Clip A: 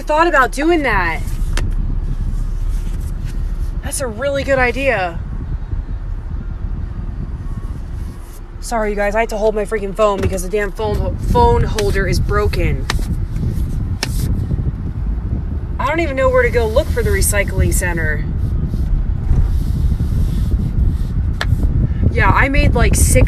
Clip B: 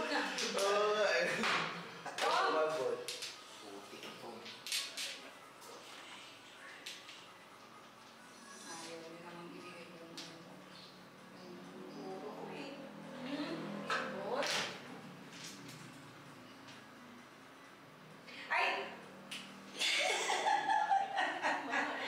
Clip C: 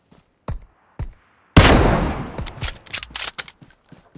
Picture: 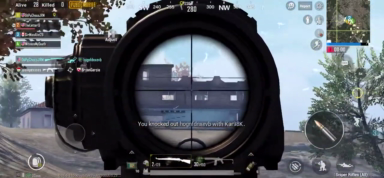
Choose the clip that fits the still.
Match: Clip C